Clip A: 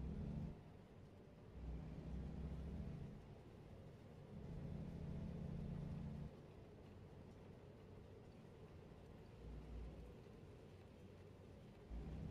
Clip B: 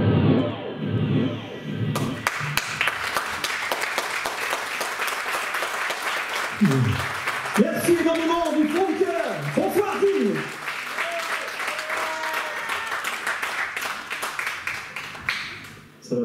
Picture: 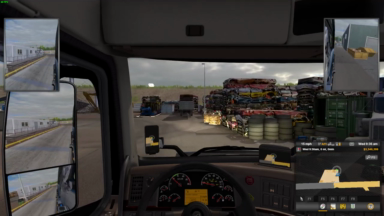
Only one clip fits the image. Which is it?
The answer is A